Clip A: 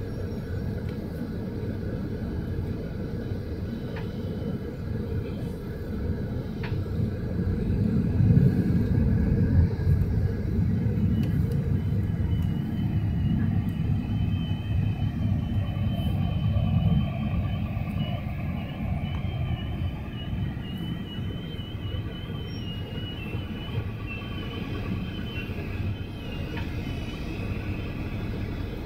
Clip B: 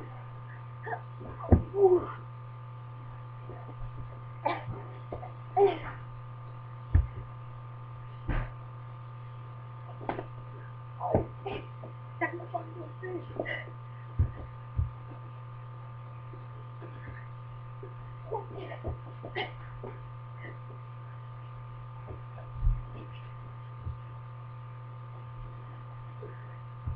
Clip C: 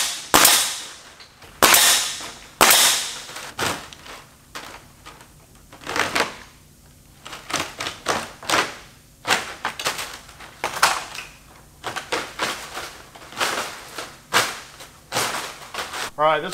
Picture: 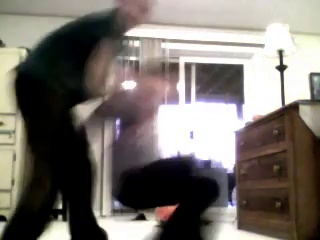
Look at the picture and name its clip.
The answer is B